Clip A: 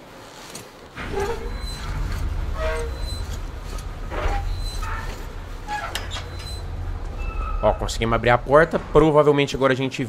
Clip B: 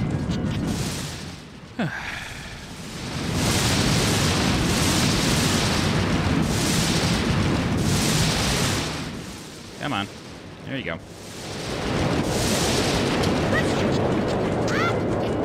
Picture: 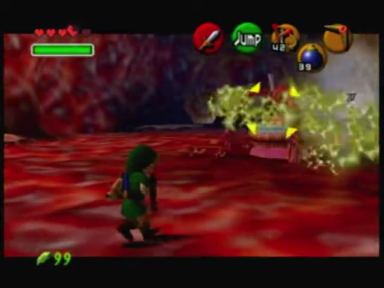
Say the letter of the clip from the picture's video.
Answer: B